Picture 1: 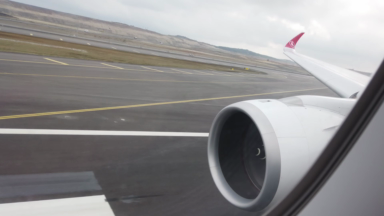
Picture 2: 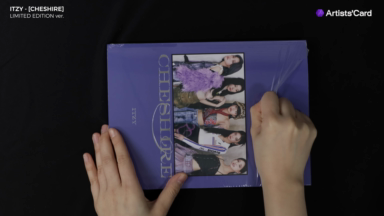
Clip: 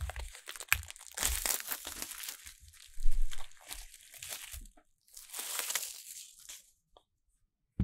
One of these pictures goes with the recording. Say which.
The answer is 2